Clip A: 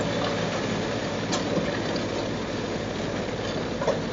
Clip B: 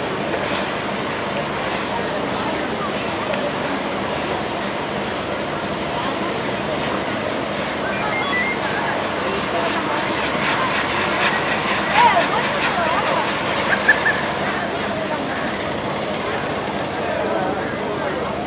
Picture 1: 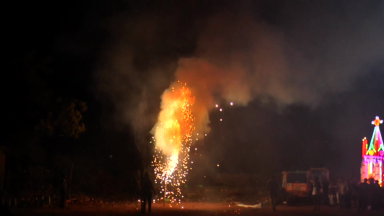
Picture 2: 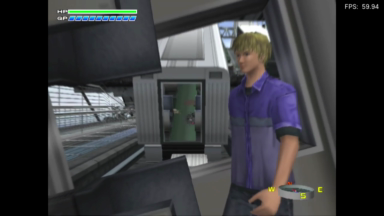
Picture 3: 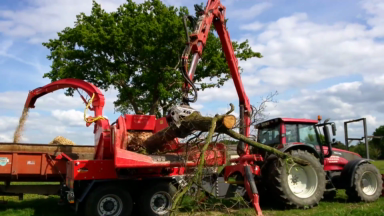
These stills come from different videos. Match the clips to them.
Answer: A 3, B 1